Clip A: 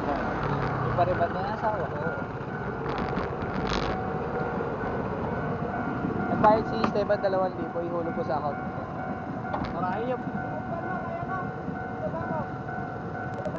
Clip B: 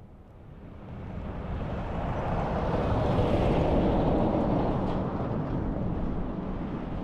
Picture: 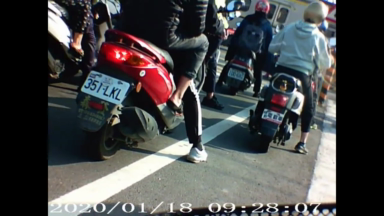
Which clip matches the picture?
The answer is A